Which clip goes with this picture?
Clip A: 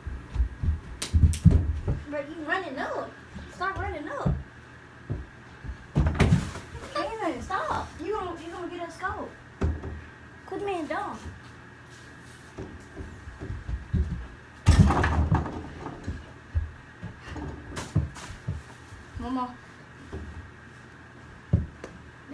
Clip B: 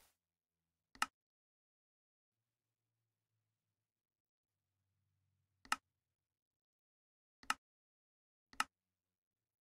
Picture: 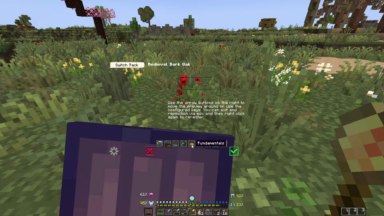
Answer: B